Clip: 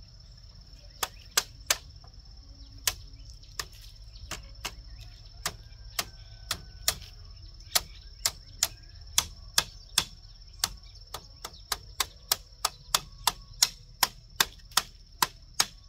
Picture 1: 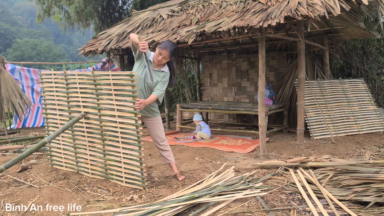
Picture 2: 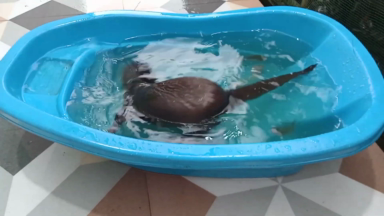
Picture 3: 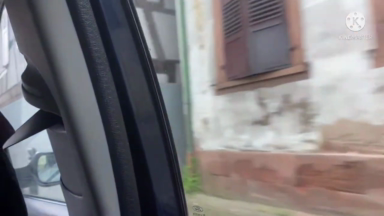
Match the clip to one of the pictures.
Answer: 1